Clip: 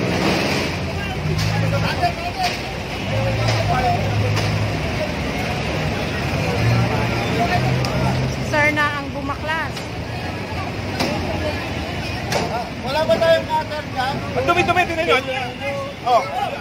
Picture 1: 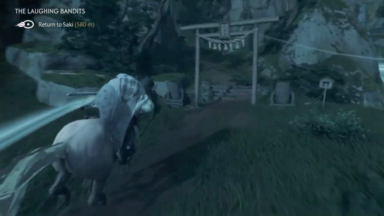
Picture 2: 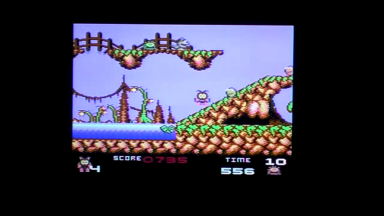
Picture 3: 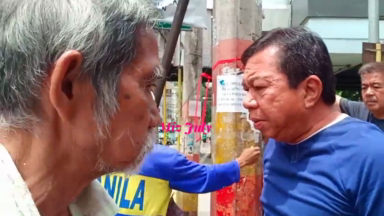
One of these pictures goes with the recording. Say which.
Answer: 3